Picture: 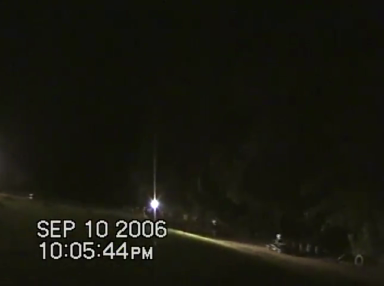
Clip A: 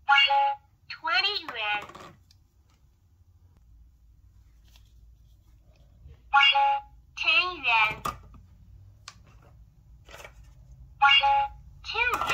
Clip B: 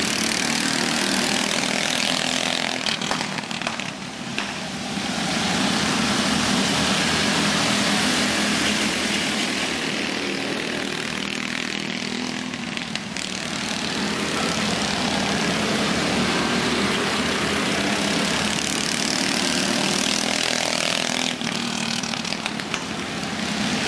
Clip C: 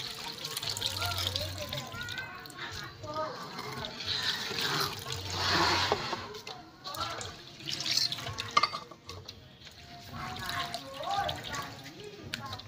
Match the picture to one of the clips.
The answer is B